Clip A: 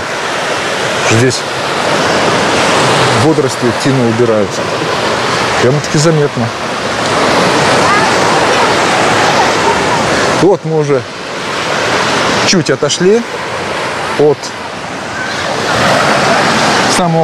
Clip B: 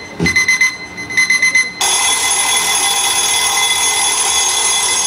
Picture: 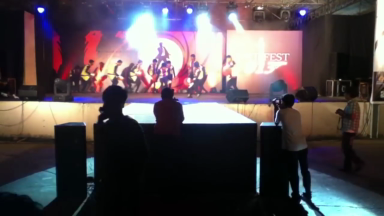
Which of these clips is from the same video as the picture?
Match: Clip B